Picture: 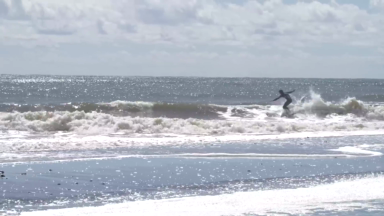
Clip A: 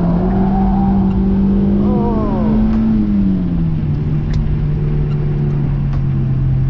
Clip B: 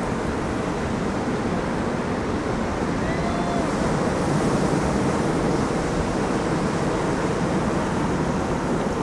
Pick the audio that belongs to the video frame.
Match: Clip B